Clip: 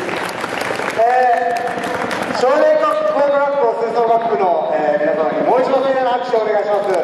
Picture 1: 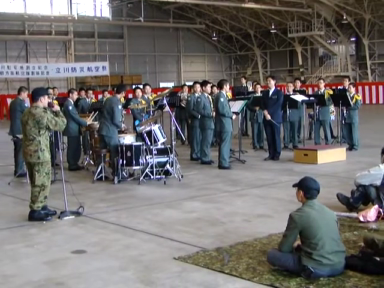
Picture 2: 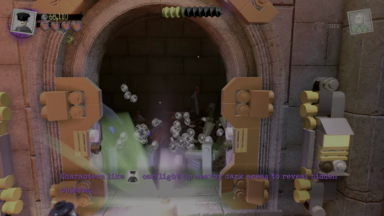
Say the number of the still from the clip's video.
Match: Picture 1